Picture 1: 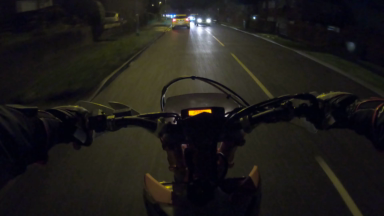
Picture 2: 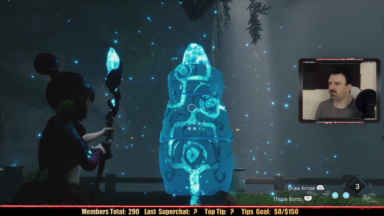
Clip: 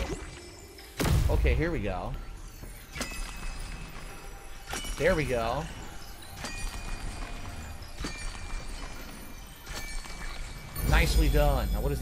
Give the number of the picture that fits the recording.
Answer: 2